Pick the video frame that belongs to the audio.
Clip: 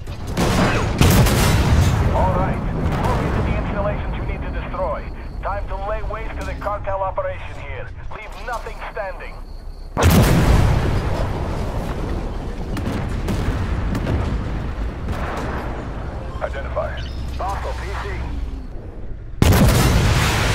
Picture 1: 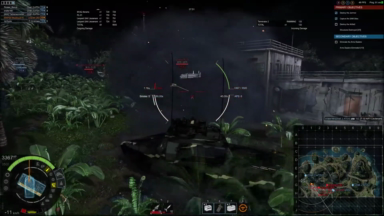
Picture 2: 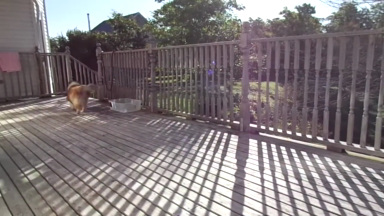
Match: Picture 1